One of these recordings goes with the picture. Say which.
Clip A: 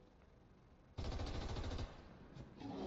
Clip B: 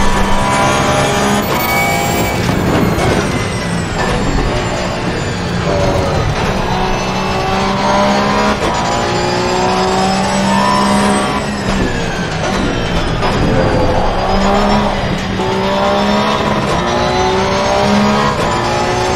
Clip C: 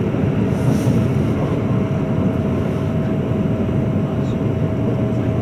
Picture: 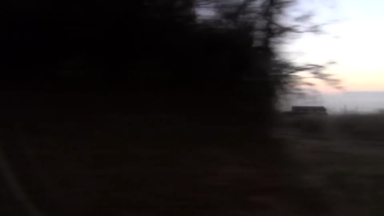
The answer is C